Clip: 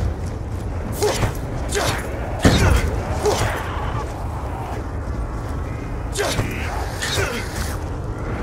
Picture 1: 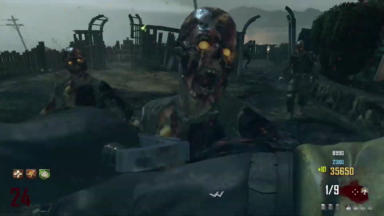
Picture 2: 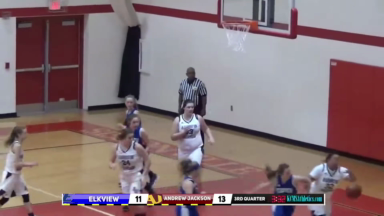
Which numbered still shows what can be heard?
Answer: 1